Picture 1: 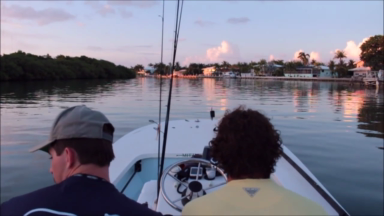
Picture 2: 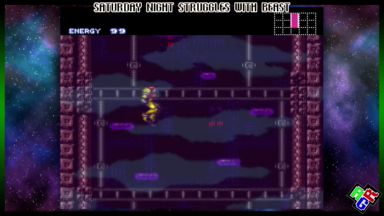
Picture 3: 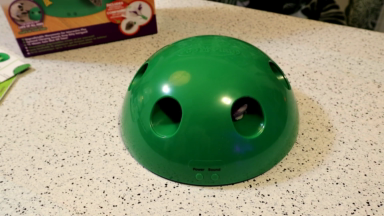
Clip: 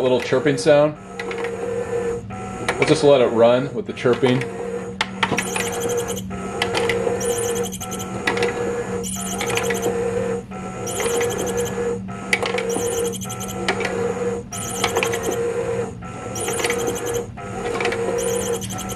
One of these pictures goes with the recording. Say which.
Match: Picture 3